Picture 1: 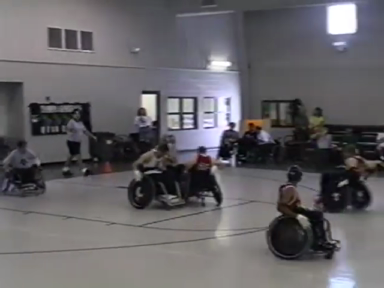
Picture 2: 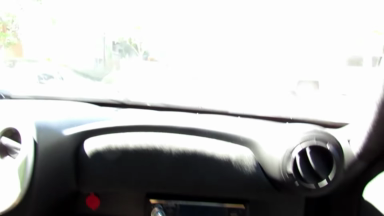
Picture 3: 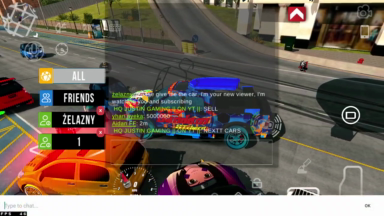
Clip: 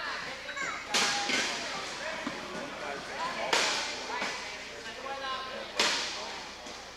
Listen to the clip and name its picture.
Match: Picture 1